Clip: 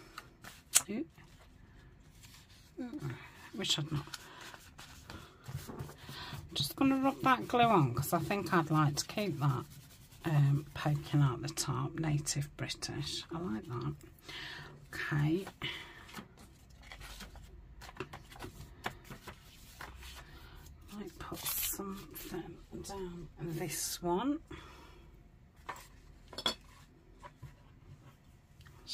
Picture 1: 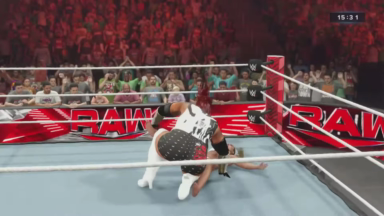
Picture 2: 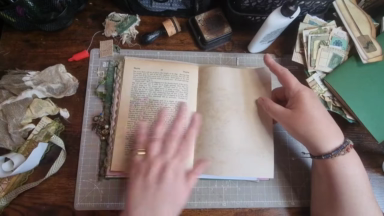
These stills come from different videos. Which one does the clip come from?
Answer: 2